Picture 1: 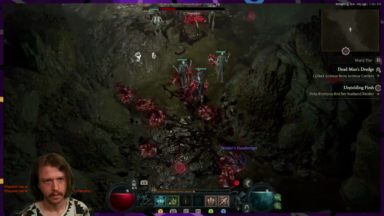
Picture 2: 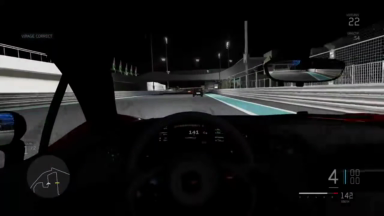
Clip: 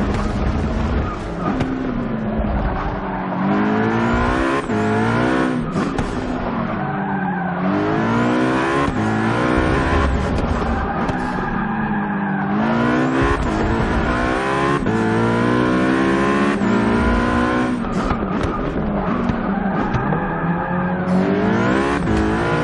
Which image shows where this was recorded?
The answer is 2